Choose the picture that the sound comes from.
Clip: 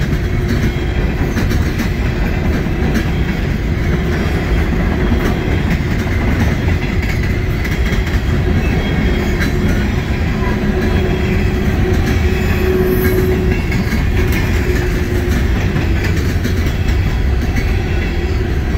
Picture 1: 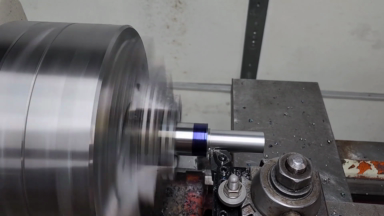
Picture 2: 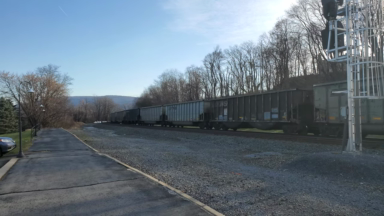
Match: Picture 2